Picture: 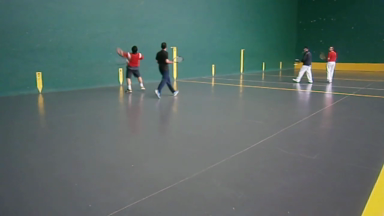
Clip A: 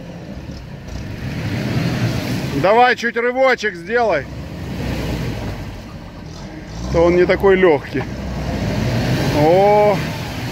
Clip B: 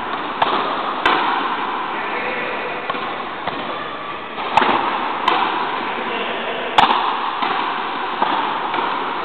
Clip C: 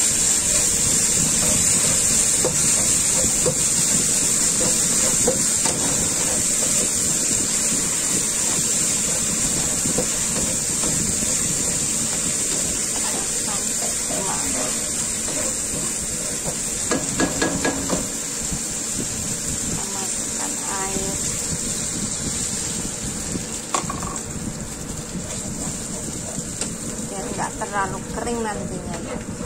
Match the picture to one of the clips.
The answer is B